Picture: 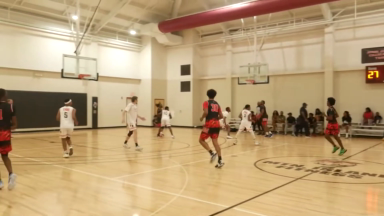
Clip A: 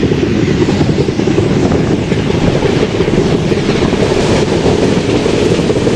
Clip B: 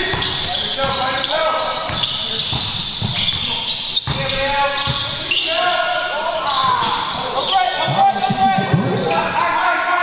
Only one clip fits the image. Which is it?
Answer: B